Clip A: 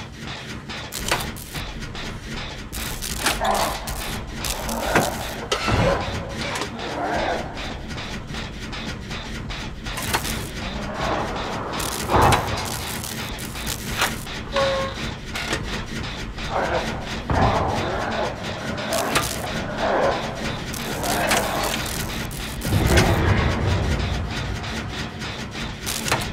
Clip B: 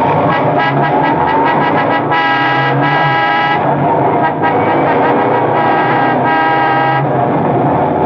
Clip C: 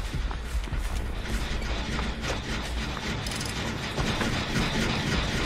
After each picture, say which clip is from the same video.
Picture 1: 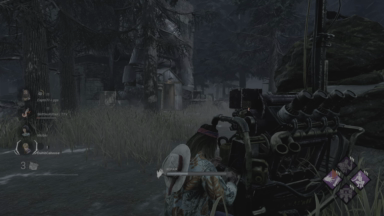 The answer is A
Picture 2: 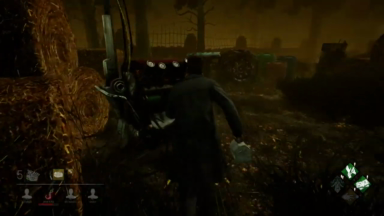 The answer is C